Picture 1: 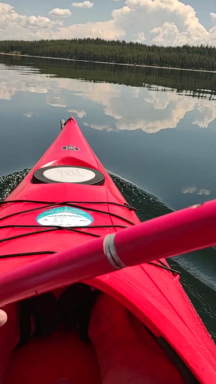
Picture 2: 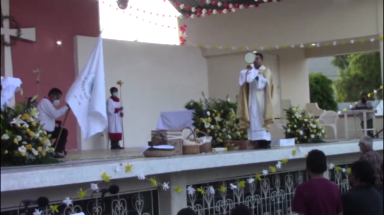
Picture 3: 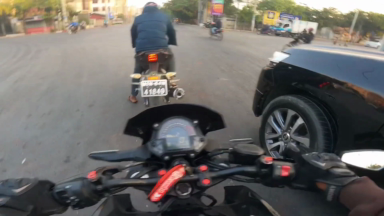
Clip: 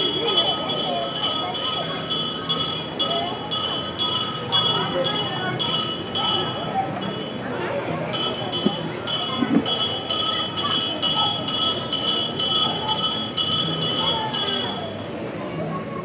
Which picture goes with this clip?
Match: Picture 2